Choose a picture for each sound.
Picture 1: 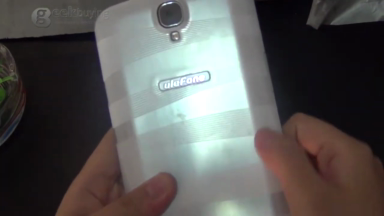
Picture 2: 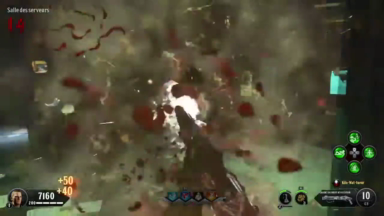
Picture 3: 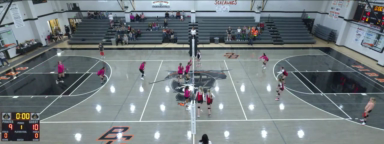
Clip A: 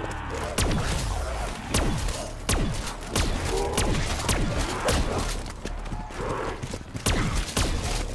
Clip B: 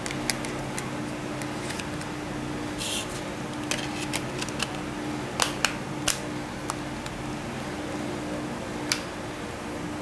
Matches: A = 2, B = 1